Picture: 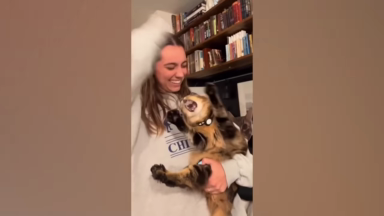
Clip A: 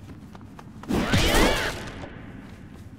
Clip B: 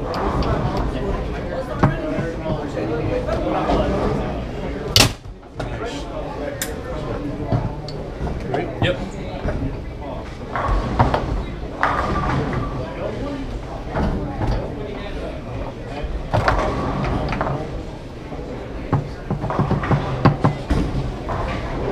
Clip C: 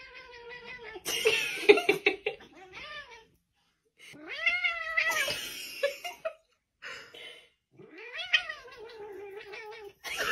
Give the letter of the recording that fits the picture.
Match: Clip C